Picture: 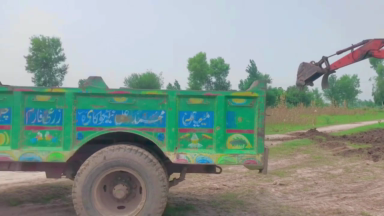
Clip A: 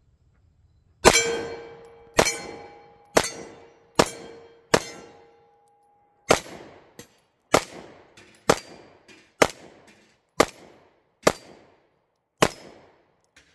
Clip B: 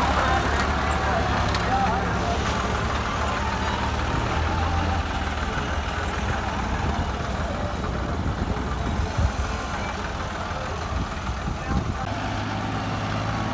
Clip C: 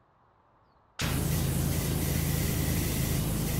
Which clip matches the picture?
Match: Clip B